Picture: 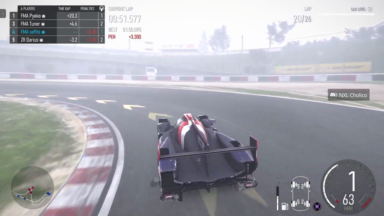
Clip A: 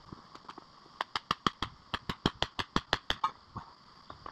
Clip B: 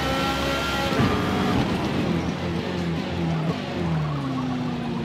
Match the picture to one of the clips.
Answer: B